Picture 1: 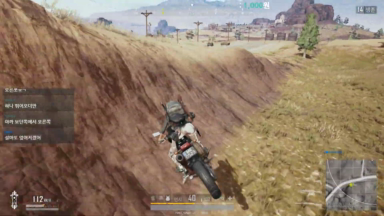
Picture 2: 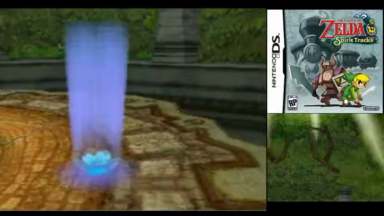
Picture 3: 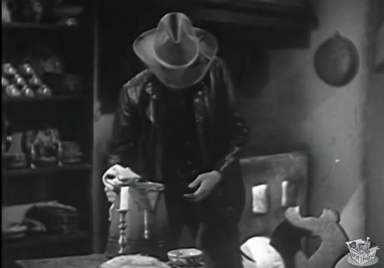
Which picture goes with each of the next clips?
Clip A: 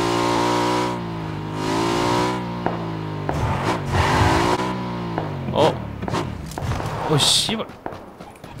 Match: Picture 1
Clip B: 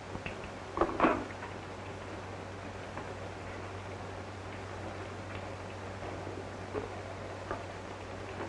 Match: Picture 3